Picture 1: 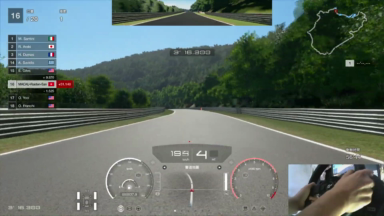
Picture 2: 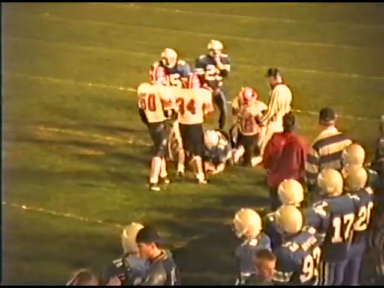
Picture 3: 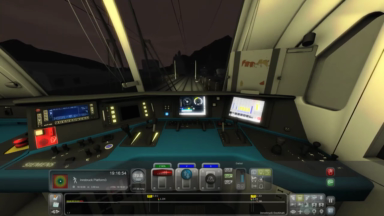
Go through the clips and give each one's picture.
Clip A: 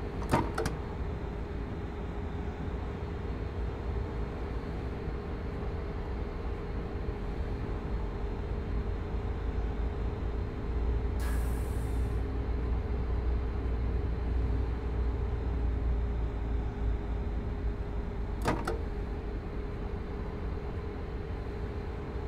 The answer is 3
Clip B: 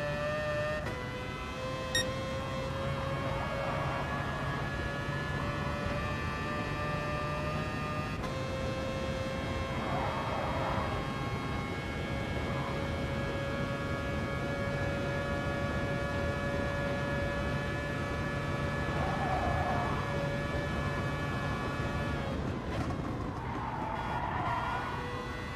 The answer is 1